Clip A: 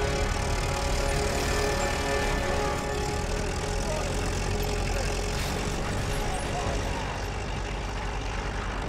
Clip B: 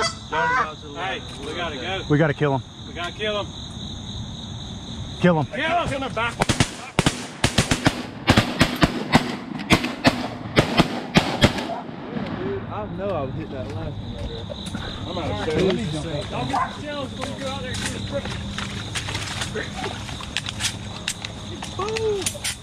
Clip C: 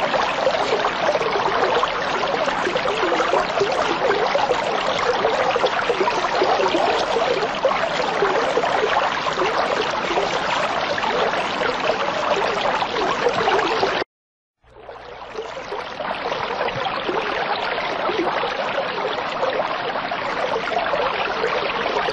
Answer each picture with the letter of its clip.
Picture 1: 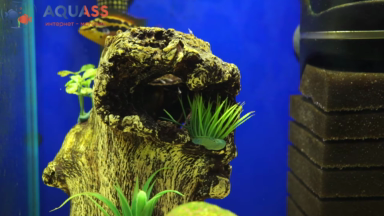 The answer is C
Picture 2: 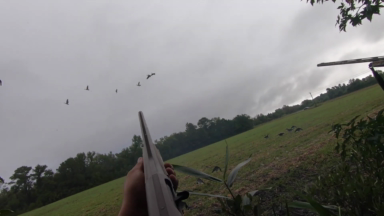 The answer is B